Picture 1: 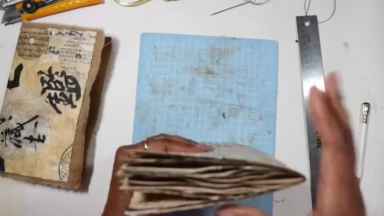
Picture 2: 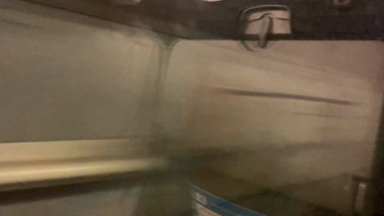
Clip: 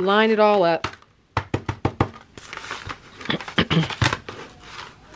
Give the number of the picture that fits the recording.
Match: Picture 1